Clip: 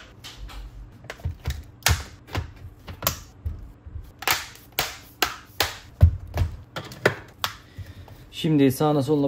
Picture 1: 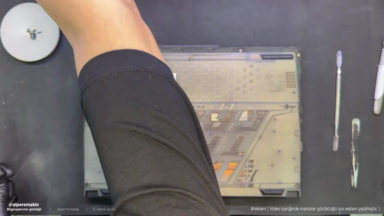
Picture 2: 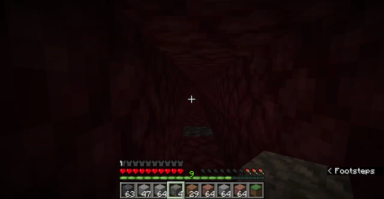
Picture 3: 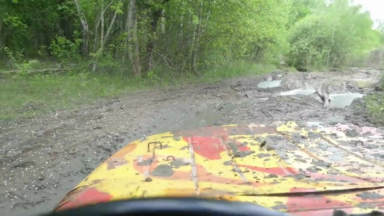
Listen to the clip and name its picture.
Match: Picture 1